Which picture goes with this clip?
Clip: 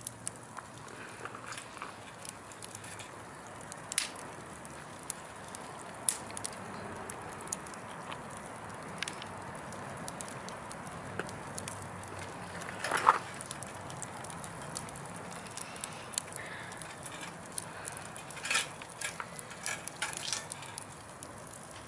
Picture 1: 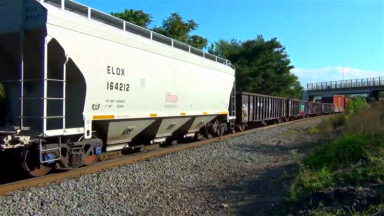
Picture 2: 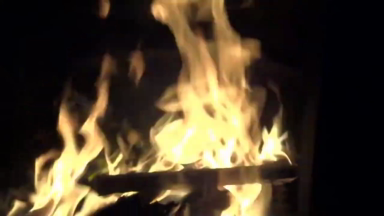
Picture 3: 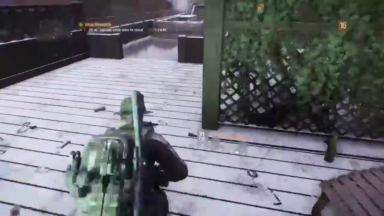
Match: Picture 2